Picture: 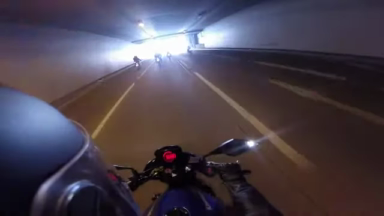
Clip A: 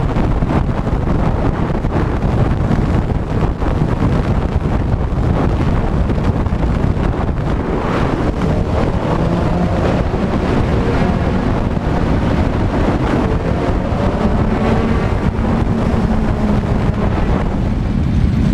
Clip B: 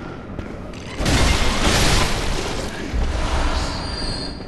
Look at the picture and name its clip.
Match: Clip A